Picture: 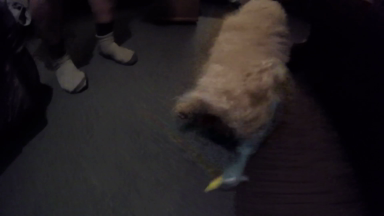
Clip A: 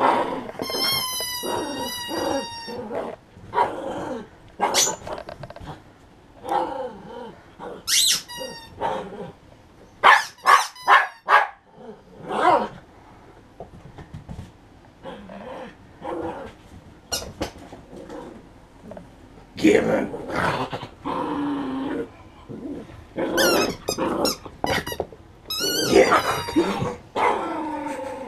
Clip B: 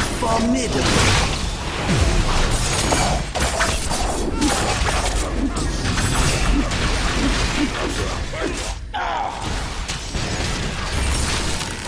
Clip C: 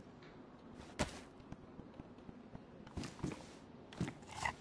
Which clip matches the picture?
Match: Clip A